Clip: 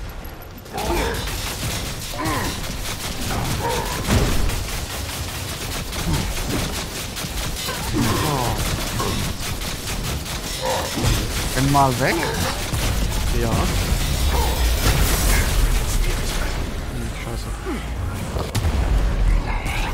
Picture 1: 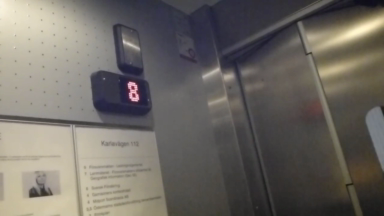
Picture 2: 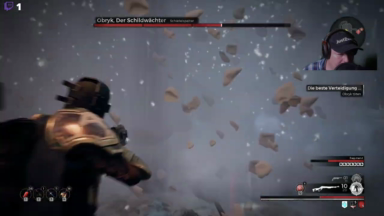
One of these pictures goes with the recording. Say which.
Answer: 2